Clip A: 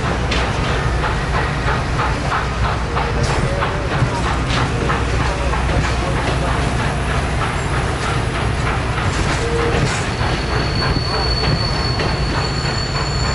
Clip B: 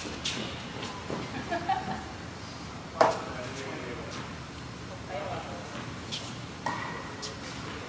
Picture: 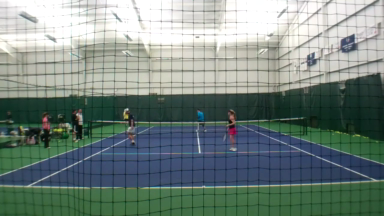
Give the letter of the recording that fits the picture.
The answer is B